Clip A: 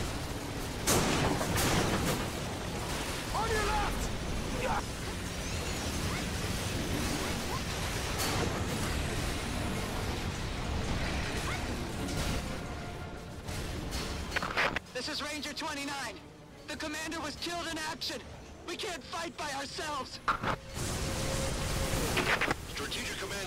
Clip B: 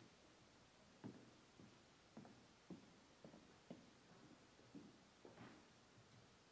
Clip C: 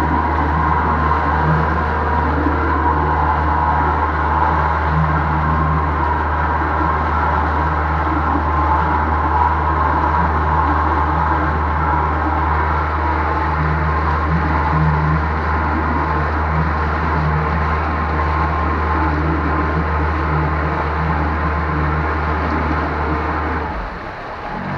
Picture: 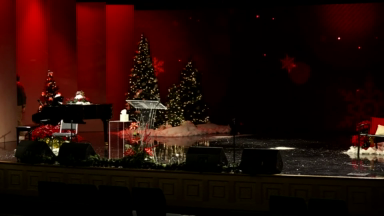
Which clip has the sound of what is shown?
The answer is B